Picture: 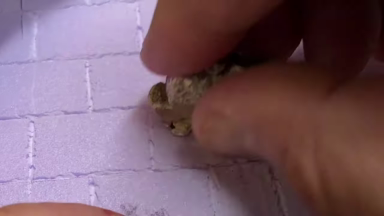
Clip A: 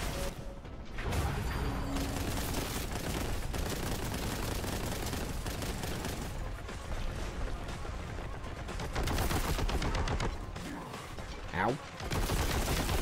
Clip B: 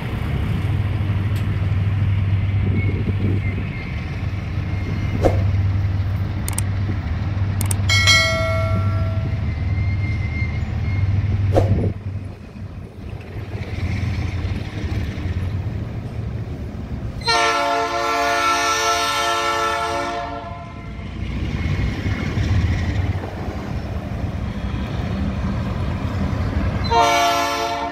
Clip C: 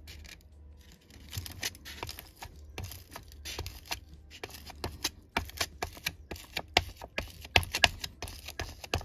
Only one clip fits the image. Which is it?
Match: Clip C